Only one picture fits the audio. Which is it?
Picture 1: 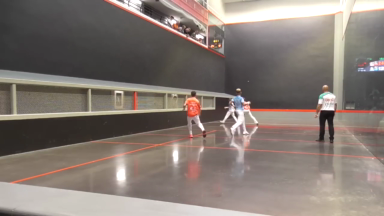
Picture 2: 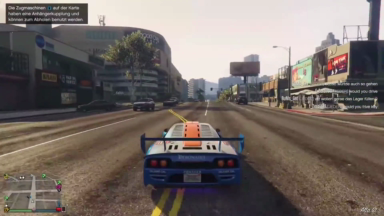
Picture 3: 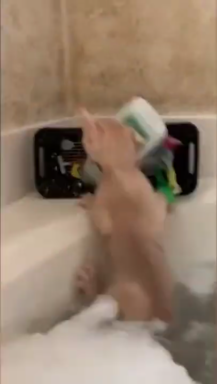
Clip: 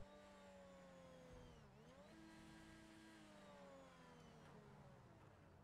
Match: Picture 2